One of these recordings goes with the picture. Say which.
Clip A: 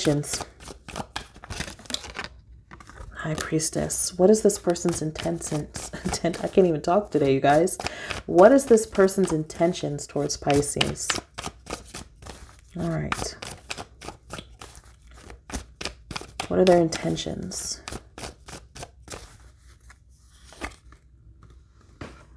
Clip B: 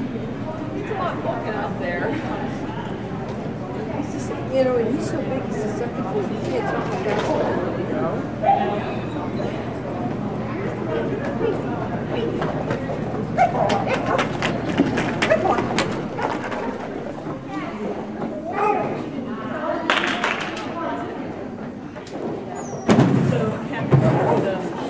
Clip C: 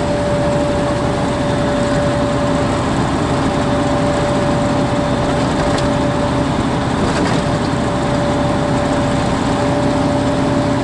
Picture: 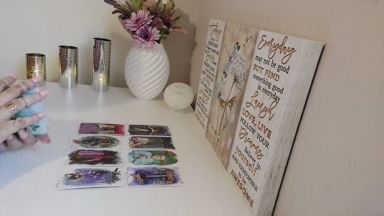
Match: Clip A